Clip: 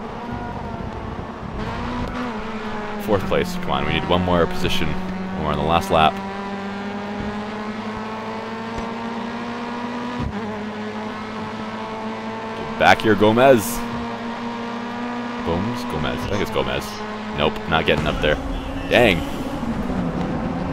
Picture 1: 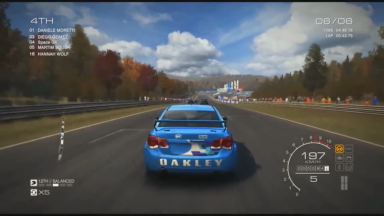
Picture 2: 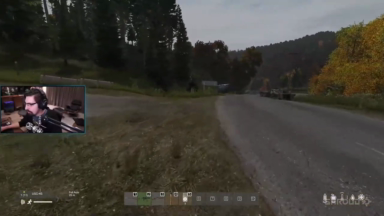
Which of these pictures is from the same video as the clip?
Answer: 1